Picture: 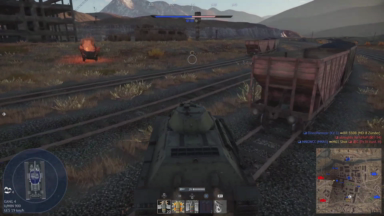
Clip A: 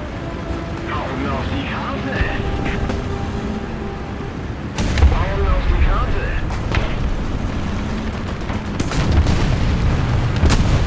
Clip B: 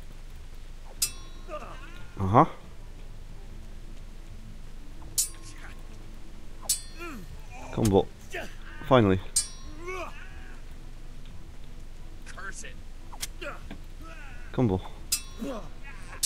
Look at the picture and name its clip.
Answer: A